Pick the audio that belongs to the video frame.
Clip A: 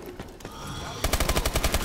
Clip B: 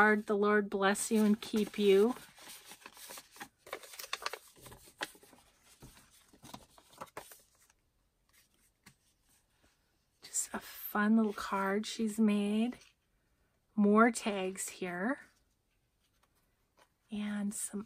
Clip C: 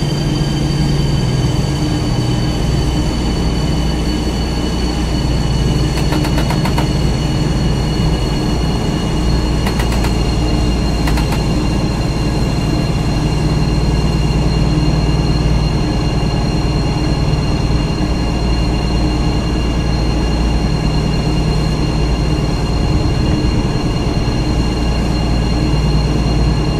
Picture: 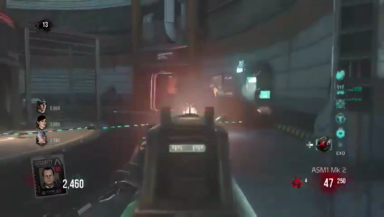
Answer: A